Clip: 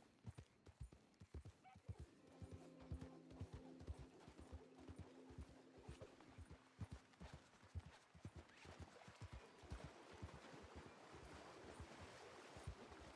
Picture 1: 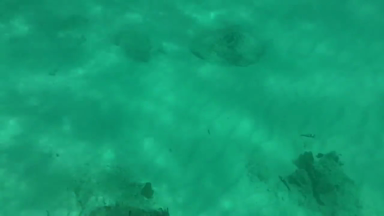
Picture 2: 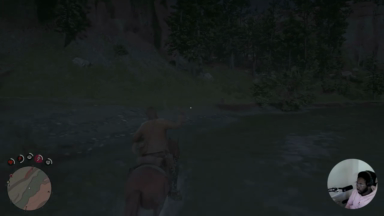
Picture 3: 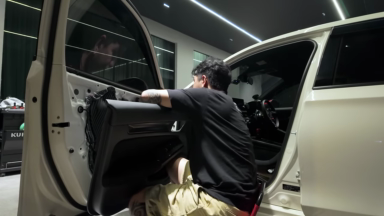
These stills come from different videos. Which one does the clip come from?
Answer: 2